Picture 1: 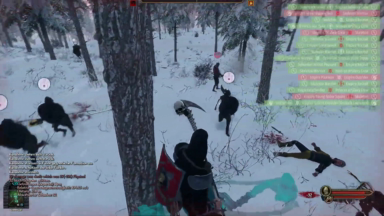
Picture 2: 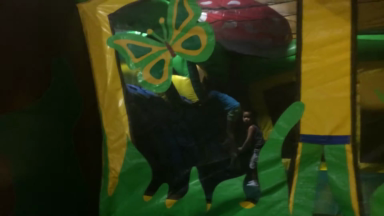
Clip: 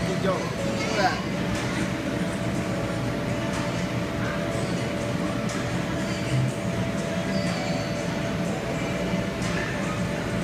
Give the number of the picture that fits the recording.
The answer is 2